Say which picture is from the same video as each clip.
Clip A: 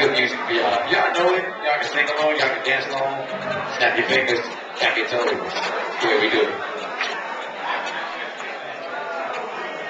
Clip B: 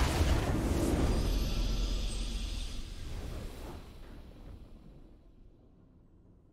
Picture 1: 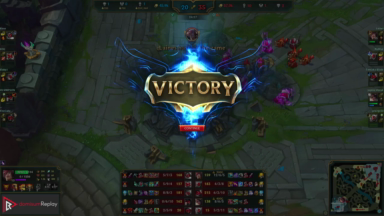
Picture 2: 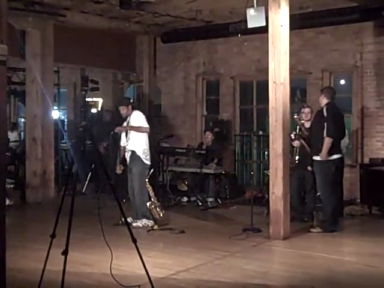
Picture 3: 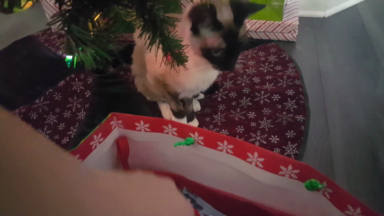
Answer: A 2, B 1